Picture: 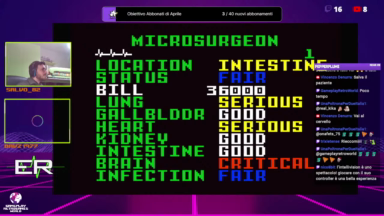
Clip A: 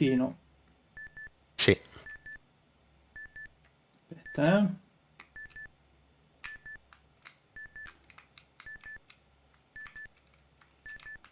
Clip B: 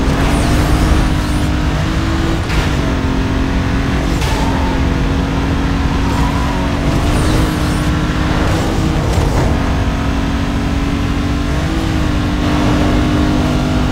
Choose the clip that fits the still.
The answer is A